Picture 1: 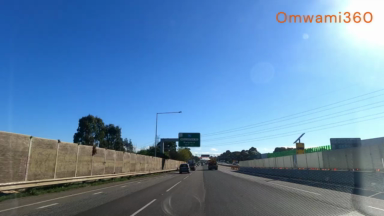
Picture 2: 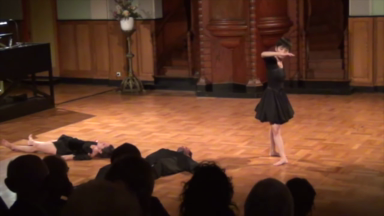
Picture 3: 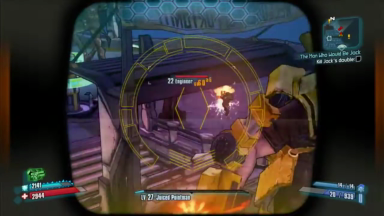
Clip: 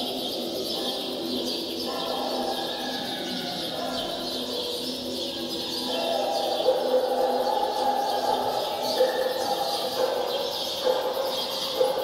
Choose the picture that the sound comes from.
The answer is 2